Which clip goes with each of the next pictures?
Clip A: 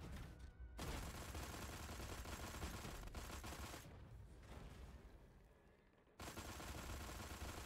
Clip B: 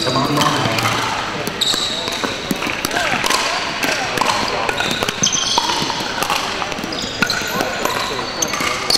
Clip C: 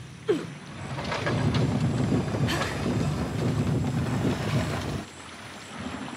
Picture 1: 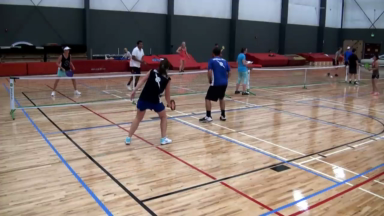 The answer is B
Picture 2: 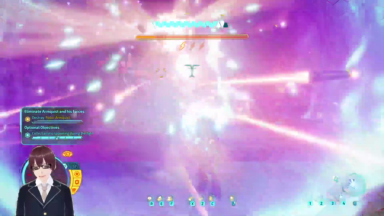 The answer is A